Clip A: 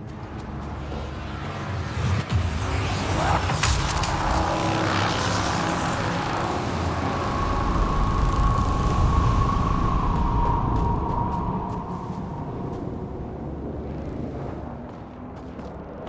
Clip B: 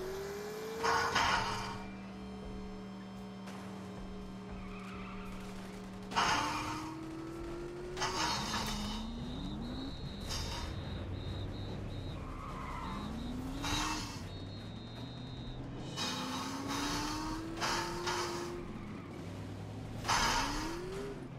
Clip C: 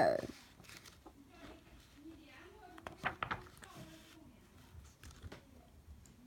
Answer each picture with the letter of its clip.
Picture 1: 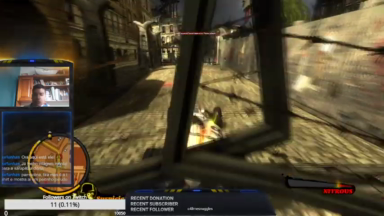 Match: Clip B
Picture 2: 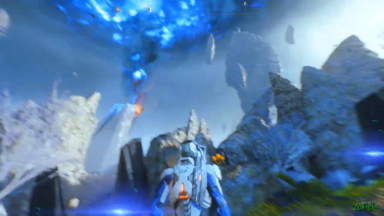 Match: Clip A